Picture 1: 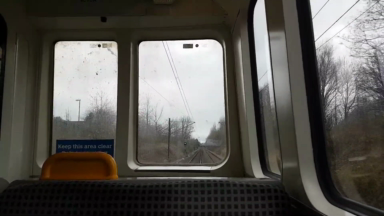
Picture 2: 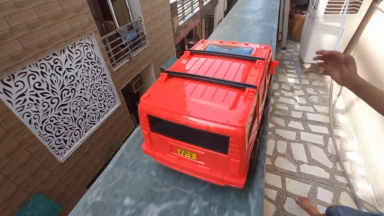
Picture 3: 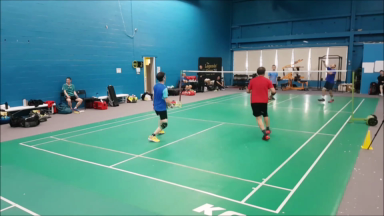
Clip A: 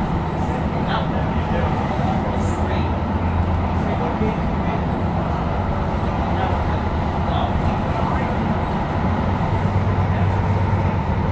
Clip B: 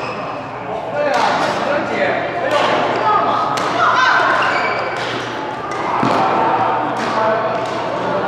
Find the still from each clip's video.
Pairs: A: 1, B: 3